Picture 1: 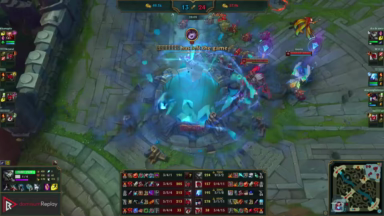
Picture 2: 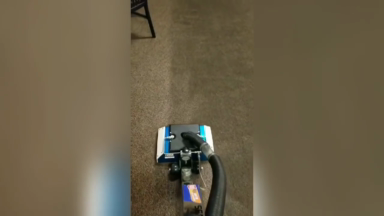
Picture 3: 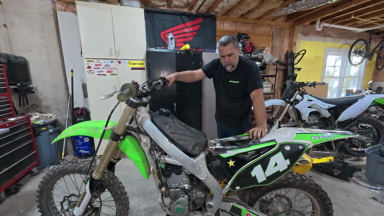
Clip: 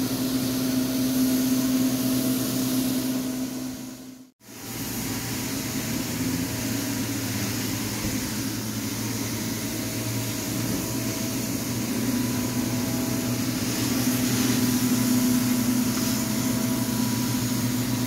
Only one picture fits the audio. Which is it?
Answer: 2